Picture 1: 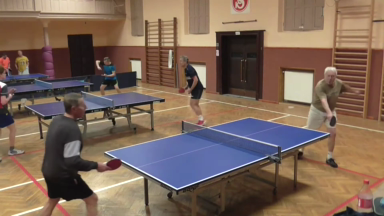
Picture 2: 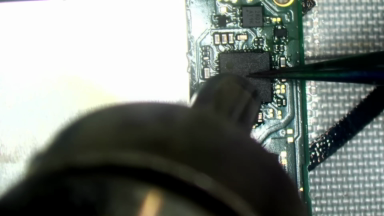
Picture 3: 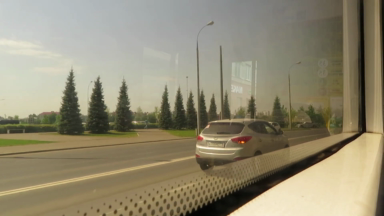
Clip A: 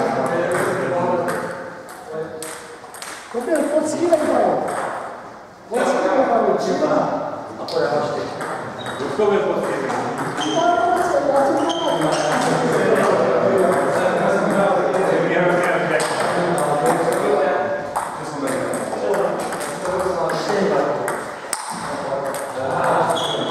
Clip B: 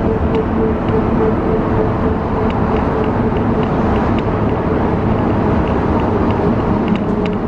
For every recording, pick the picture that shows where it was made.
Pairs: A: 1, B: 3